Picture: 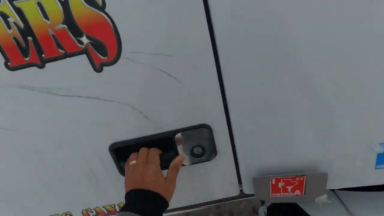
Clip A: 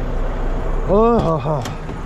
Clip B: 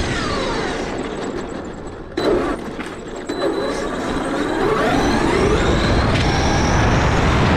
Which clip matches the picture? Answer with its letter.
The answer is A